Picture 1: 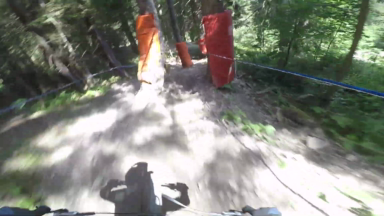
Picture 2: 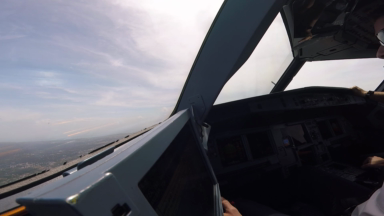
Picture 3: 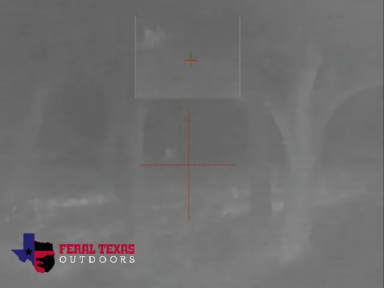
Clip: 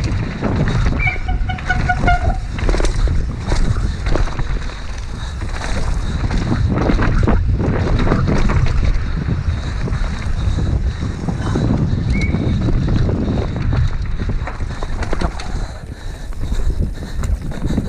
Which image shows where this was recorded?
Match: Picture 1